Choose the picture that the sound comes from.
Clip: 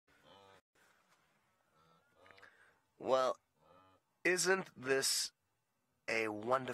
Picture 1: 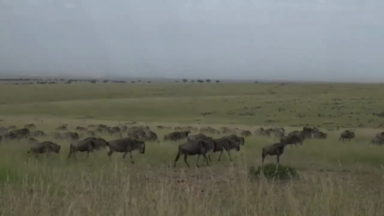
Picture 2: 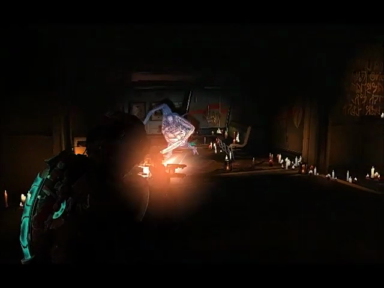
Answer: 1